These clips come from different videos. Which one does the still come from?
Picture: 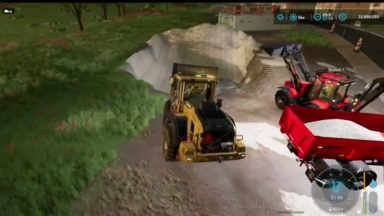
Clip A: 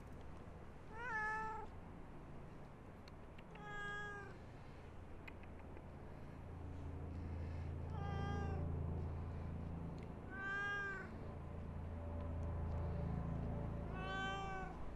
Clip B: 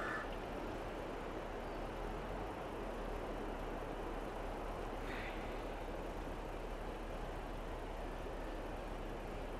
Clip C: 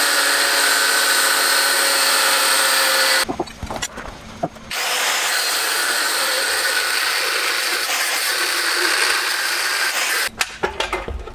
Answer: B